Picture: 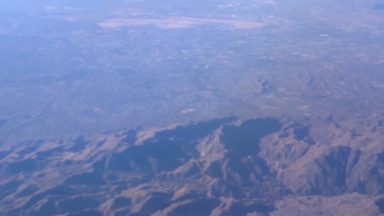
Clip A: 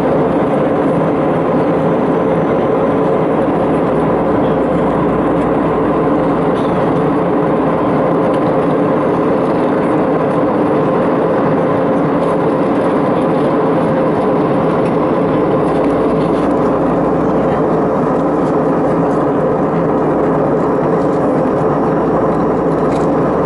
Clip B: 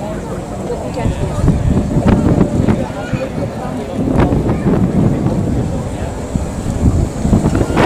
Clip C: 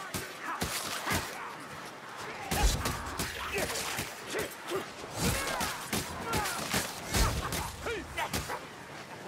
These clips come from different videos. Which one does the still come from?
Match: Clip A